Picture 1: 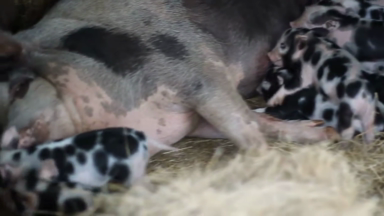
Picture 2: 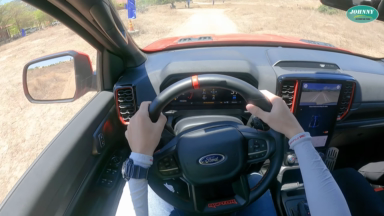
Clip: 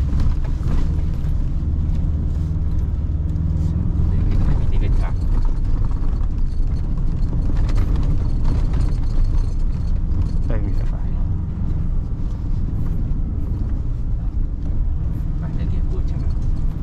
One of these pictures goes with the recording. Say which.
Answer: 2